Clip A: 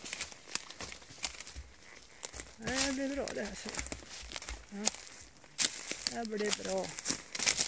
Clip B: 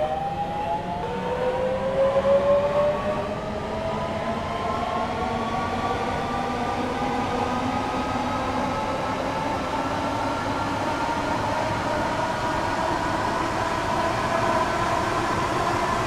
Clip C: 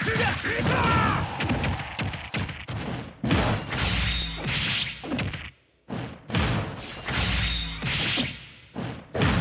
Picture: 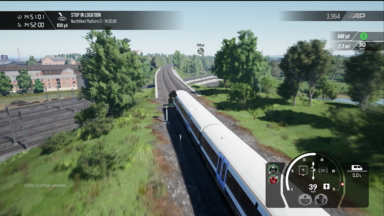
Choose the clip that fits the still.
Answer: B